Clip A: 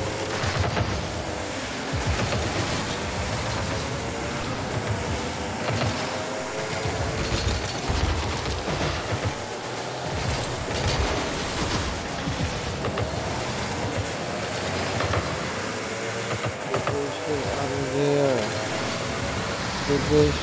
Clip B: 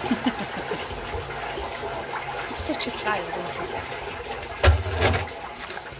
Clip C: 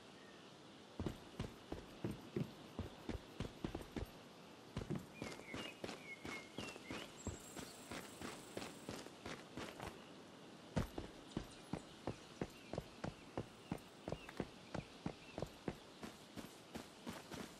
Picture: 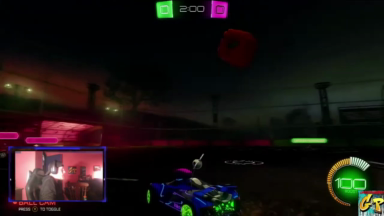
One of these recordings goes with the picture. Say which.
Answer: A